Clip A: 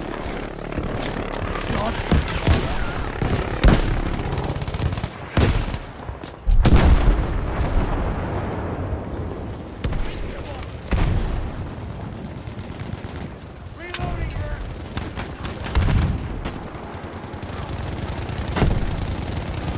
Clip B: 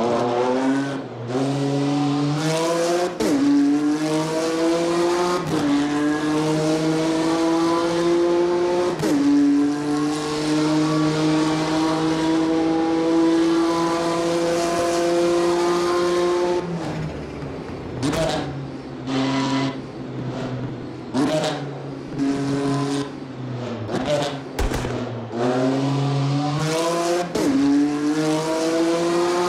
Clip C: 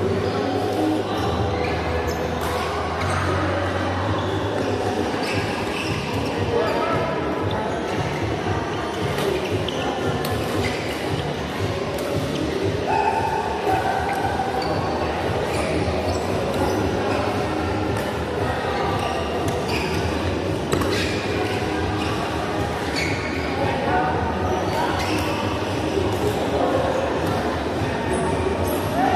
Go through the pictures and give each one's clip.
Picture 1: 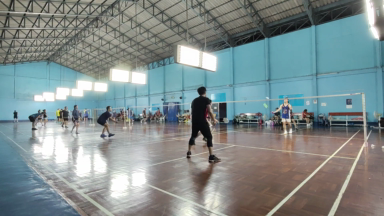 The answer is C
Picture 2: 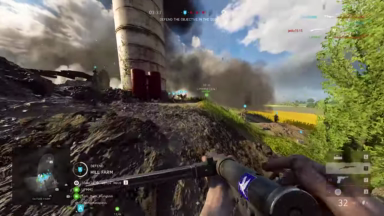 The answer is A